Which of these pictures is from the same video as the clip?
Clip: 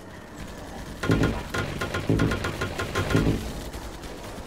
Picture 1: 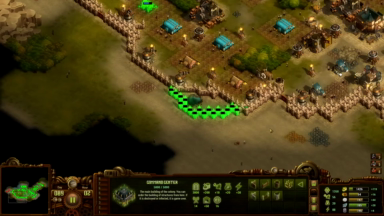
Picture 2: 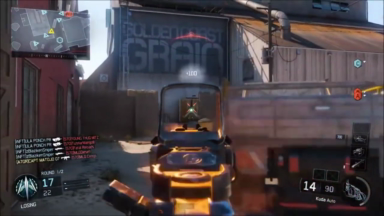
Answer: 1